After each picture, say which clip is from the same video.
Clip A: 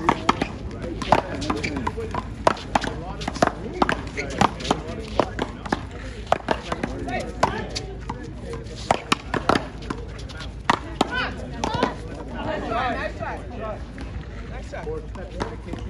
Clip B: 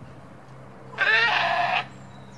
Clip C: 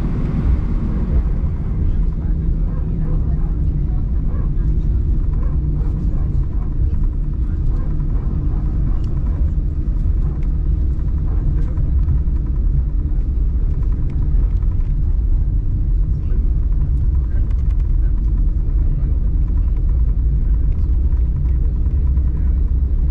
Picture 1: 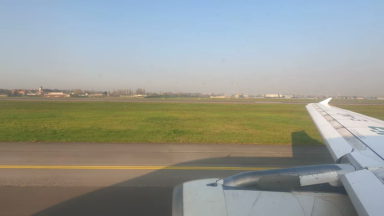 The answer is C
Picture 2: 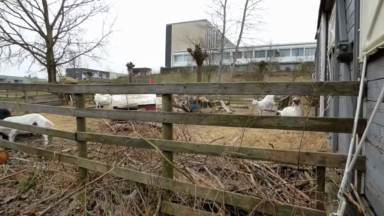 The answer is B